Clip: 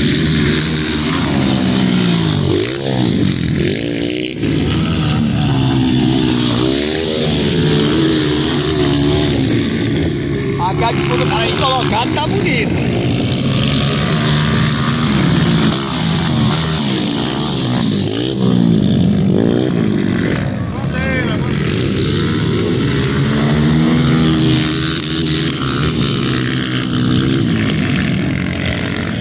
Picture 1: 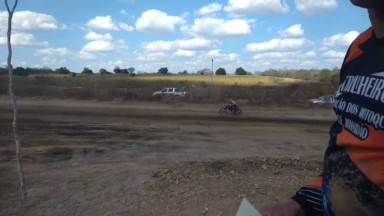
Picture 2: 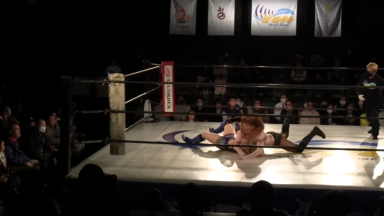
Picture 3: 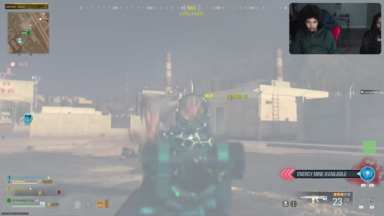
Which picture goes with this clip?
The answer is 1